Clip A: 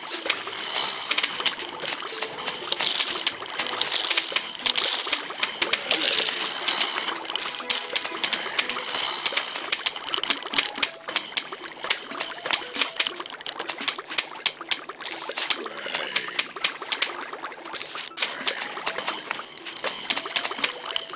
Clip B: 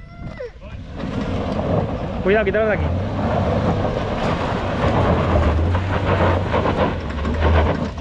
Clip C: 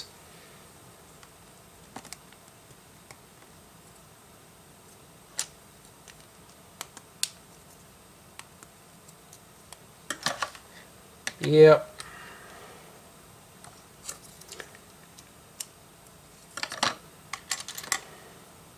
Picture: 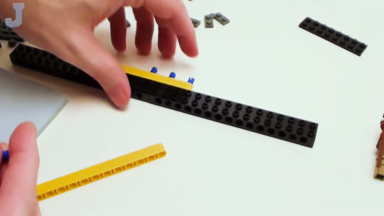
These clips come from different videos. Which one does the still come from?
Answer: C